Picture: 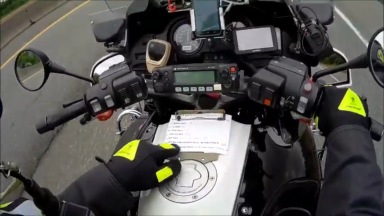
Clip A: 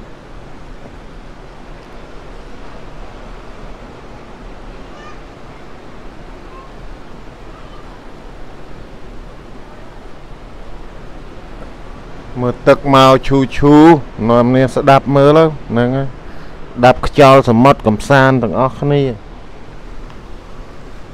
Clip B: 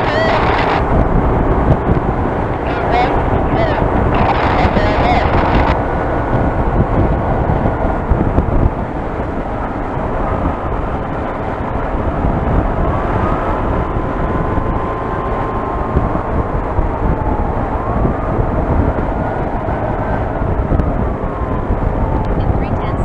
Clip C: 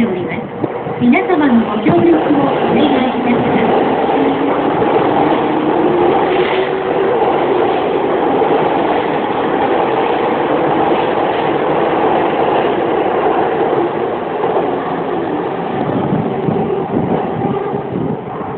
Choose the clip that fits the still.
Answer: B